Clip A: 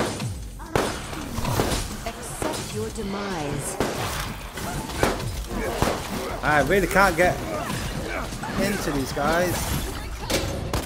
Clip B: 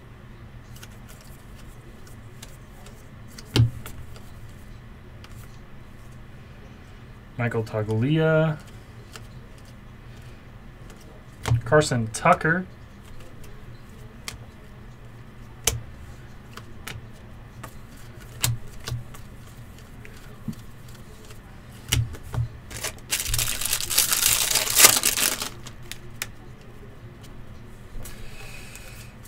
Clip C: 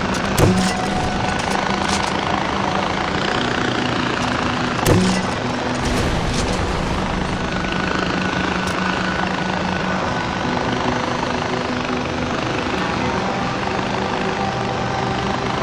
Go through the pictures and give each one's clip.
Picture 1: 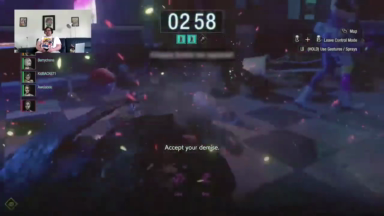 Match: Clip A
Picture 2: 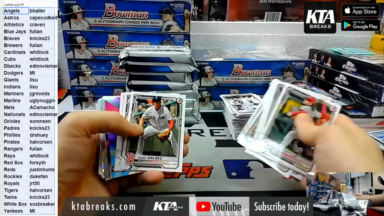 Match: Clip B